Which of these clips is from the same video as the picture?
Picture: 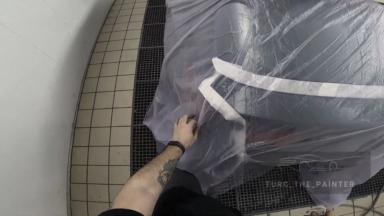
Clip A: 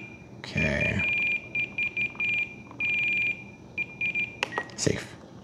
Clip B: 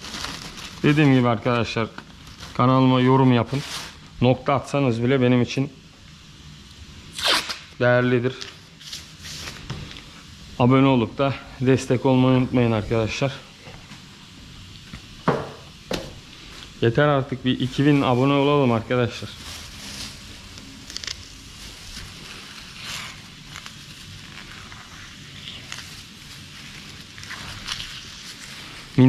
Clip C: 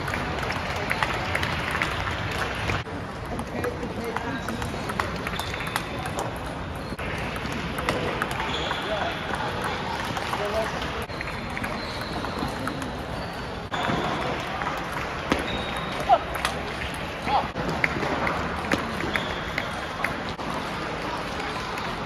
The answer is B